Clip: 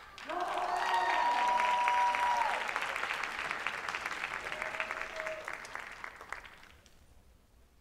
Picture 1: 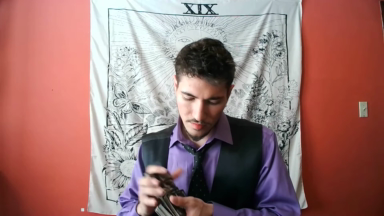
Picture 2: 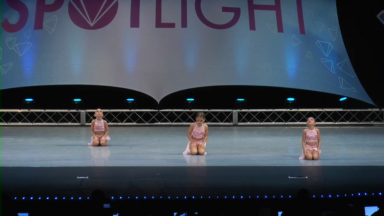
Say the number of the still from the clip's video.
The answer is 2